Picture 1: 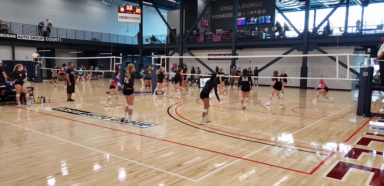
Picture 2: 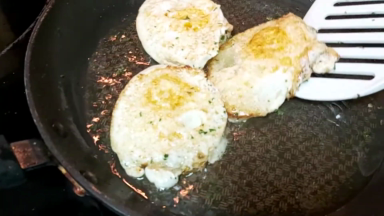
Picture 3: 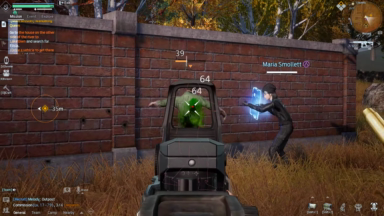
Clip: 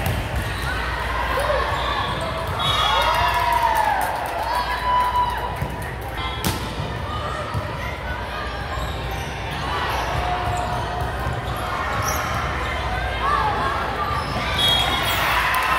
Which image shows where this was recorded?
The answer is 1